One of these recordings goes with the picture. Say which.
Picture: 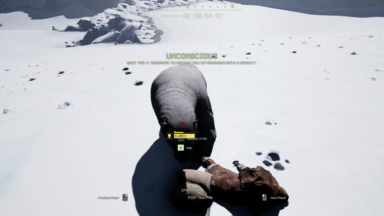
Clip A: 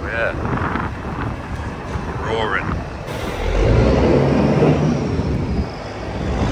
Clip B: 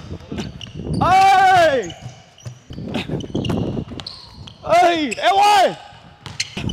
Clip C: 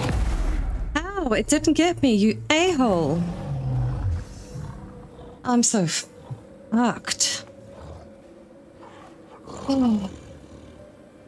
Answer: C